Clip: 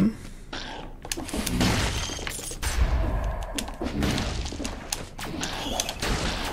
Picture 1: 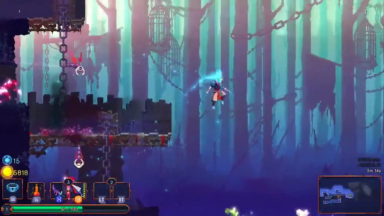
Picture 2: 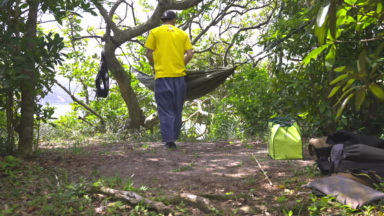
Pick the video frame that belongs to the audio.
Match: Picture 1